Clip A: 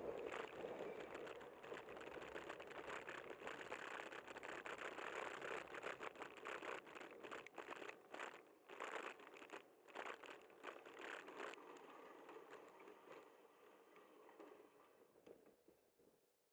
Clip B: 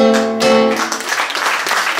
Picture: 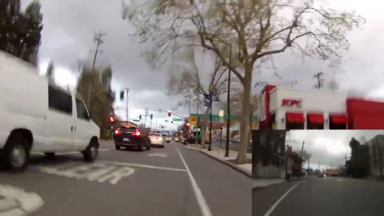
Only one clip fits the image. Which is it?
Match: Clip A